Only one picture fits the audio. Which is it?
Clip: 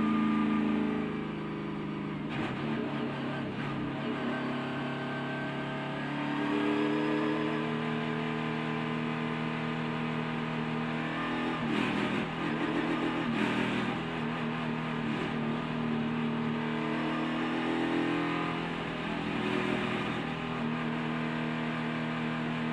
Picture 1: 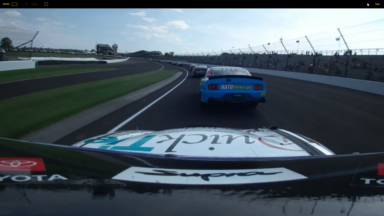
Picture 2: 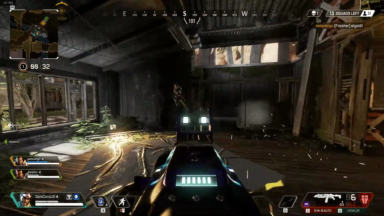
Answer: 1